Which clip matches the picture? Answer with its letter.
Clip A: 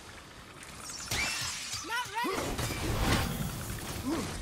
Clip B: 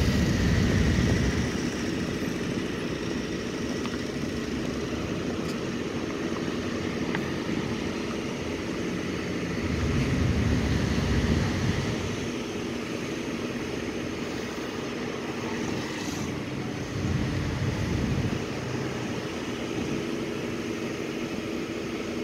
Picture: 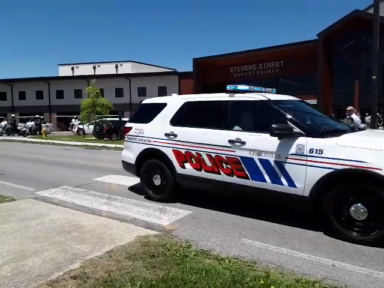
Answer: B